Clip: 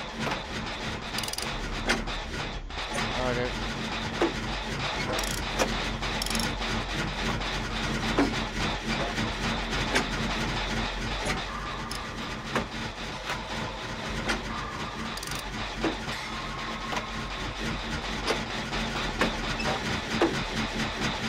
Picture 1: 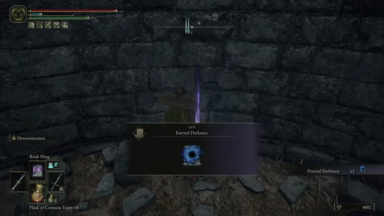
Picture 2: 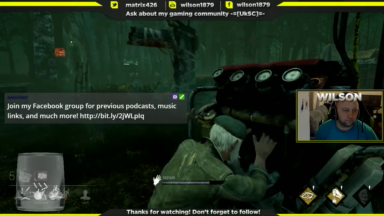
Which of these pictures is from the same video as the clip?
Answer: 2